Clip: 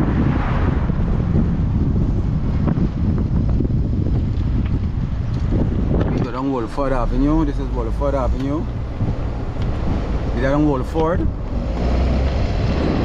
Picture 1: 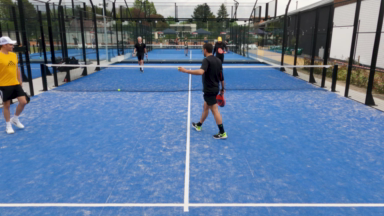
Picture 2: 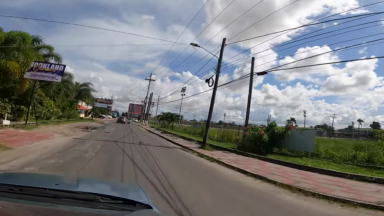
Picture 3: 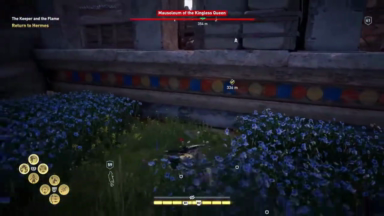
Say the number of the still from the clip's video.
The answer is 2